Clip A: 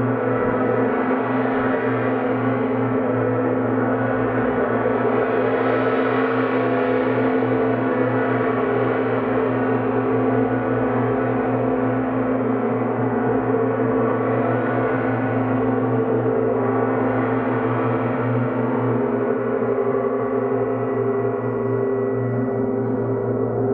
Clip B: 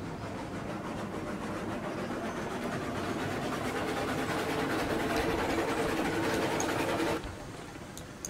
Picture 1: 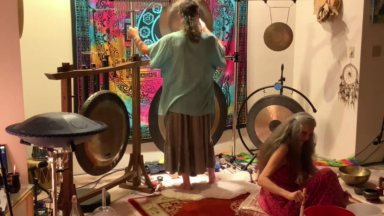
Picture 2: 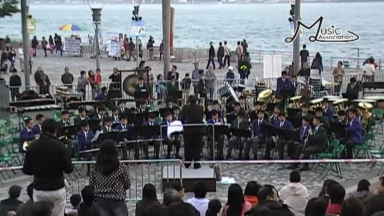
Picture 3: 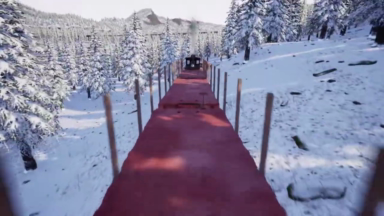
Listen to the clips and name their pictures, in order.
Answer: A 1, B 3